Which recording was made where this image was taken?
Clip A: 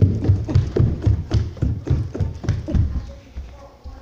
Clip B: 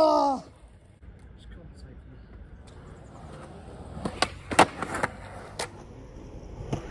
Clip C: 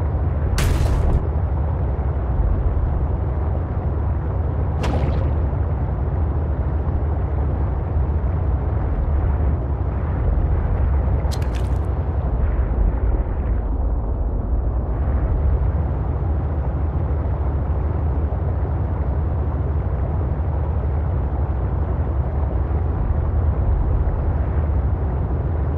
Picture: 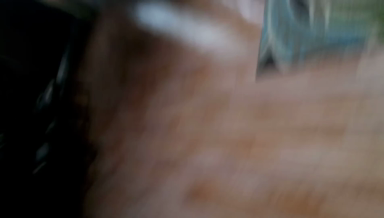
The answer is A